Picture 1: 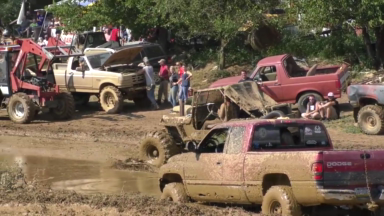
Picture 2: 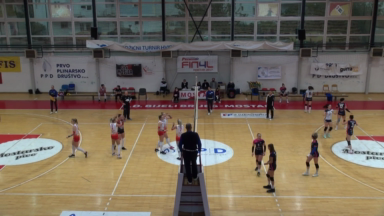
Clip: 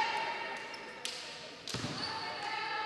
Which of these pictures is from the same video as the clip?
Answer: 2